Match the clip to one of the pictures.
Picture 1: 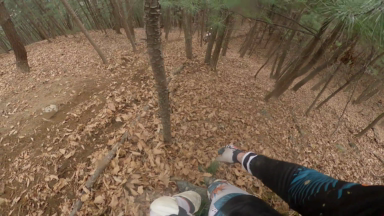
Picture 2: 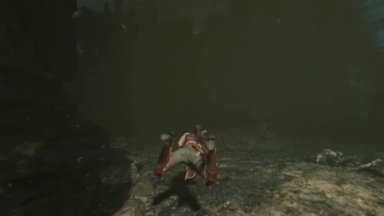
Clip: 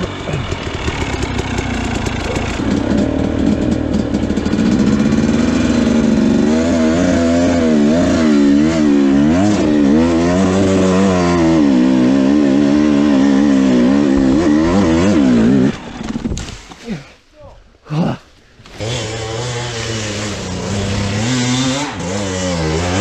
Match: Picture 1